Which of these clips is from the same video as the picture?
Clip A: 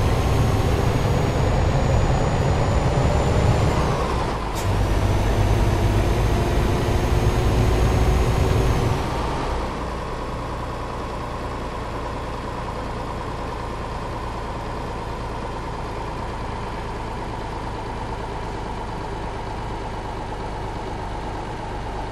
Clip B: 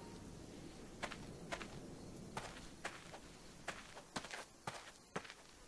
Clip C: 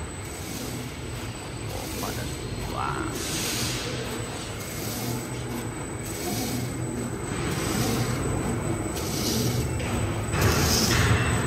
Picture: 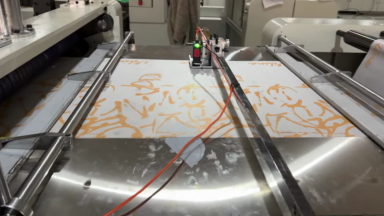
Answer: C